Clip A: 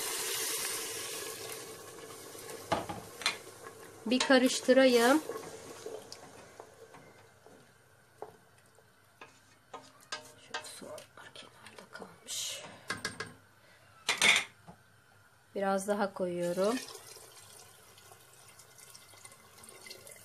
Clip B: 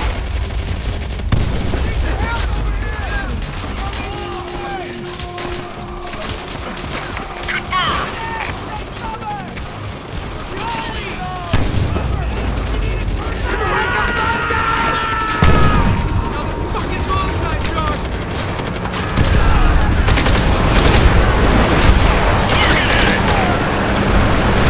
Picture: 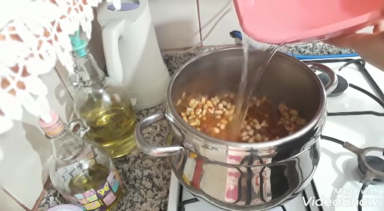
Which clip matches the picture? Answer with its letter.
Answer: A